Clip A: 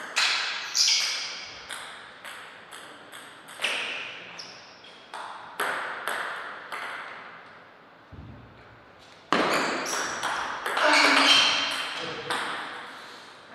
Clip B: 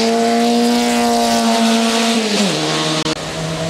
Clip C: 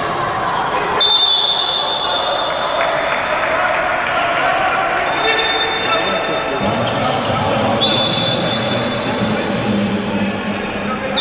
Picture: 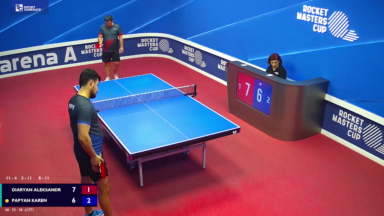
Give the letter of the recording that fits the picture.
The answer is A